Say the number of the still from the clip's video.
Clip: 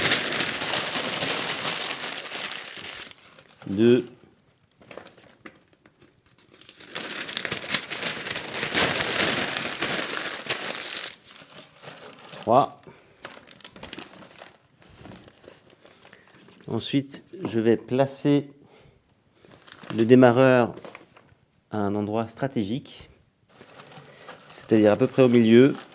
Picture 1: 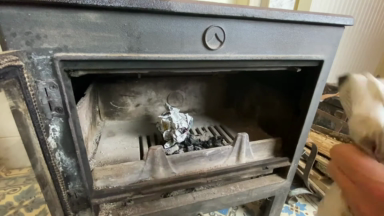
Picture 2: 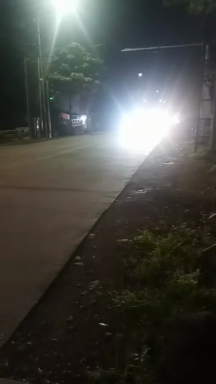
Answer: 1